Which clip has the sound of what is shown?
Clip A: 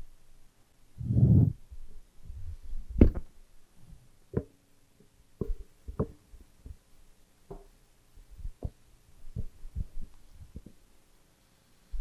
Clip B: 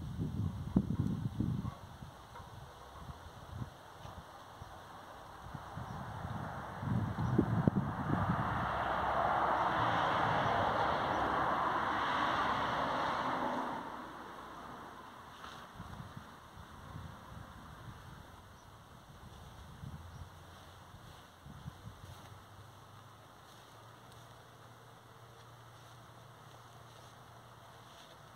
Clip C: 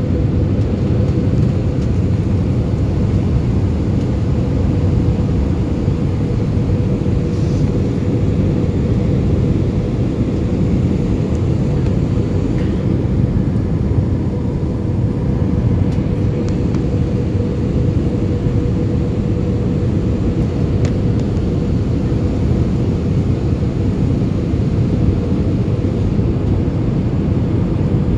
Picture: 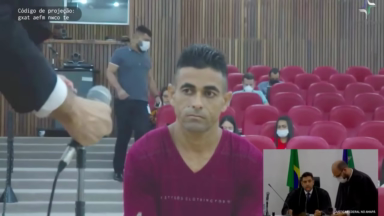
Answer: A